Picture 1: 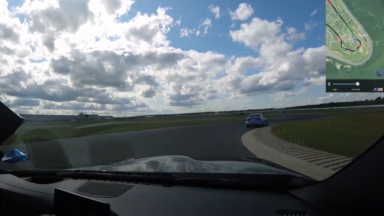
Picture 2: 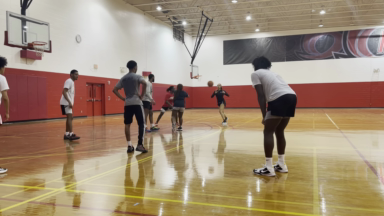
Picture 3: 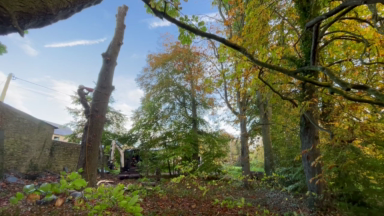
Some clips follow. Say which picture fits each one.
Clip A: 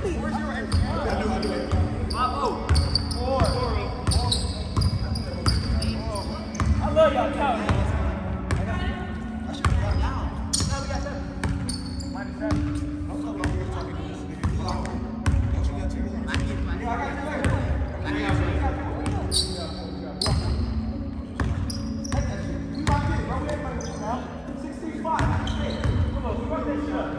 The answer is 2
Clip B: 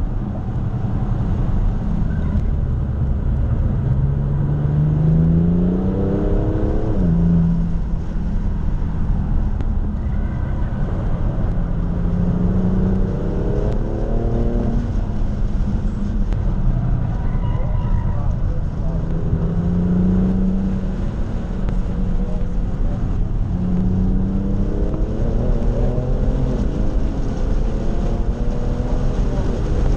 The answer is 1